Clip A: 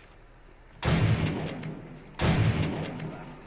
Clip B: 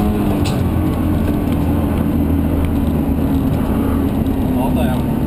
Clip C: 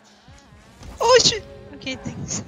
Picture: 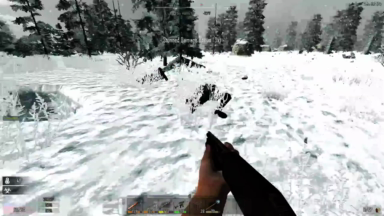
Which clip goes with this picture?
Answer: A